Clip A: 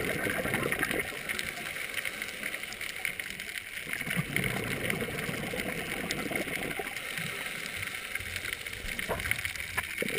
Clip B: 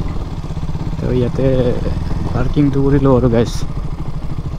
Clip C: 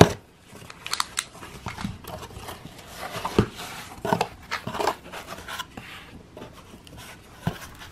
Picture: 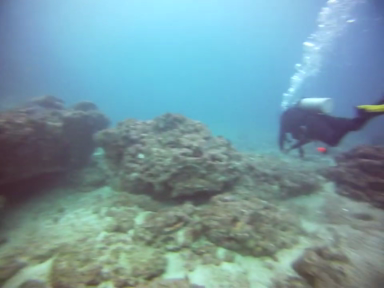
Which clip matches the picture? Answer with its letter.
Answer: A